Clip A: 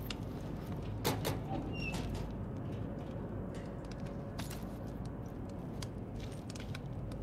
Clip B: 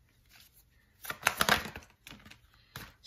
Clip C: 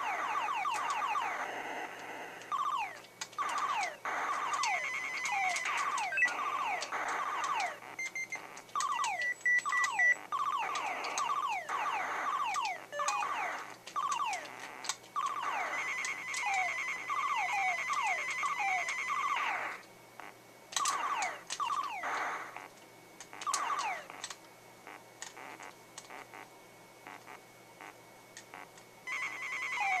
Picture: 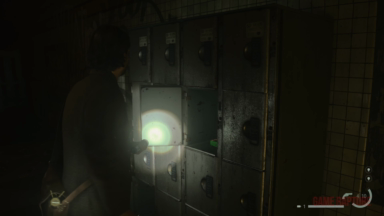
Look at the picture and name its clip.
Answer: A